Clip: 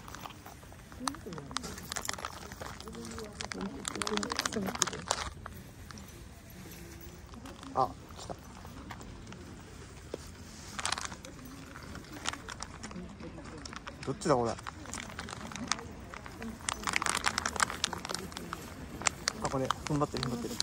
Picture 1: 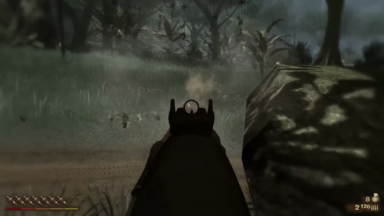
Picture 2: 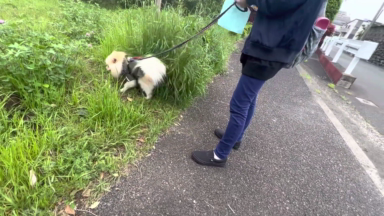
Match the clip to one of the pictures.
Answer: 2